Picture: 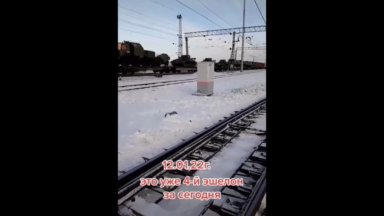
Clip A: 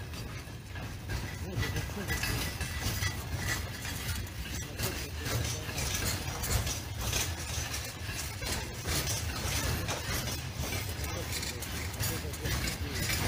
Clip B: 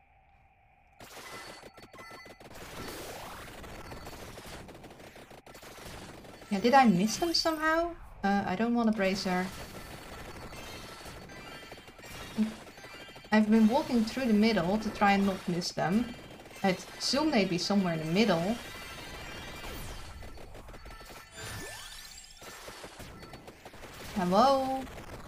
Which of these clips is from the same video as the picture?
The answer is A